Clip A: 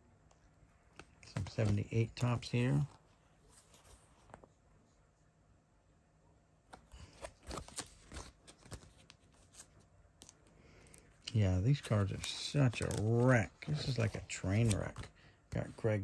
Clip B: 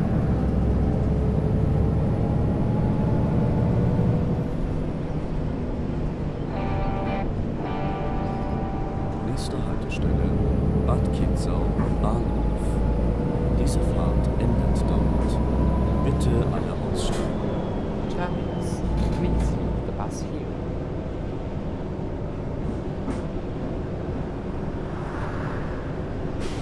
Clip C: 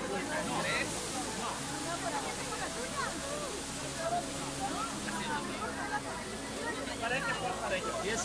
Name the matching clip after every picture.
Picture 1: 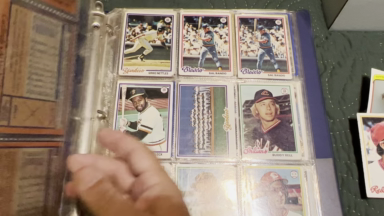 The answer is A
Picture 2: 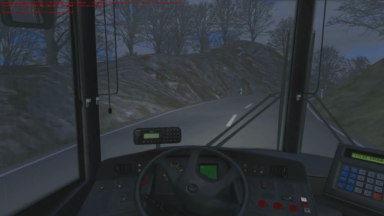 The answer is B